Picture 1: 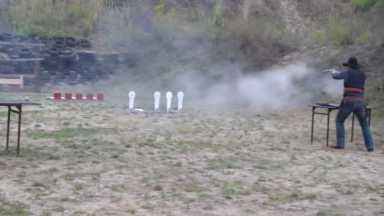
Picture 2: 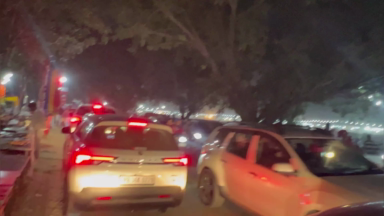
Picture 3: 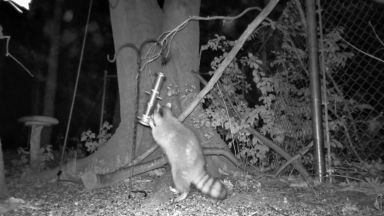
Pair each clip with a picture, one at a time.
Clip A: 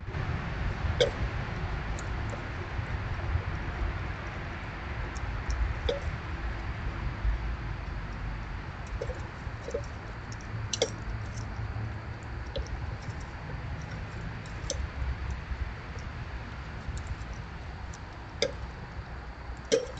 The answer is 3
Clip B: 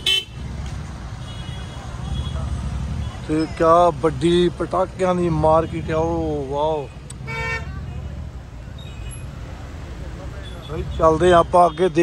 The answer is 2